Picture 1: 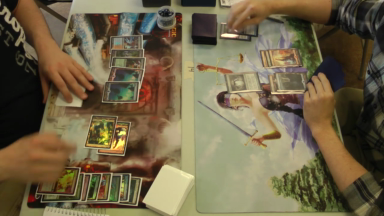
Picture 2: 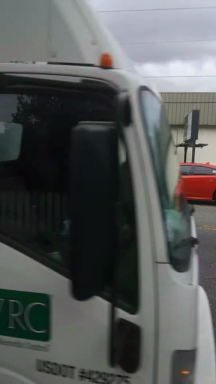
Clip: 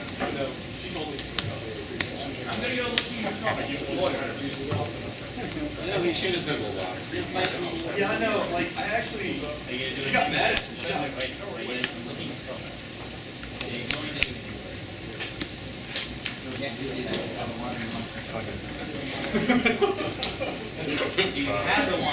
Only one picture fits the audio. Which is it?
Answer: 1